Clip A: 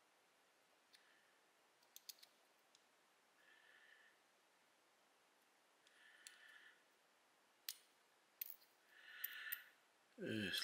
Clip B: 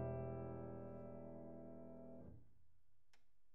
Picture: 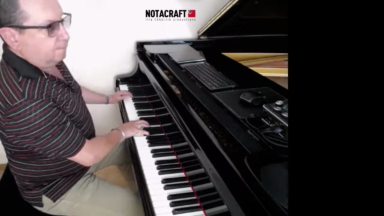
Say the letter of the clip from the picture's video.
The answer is B